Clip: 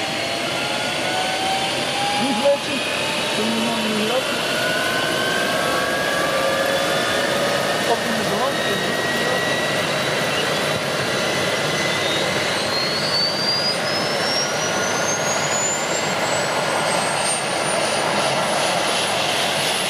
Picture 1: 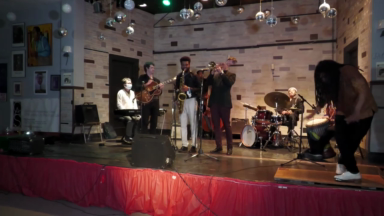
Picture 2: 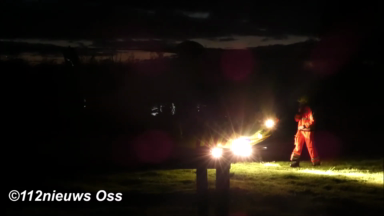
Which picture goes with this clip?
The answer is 2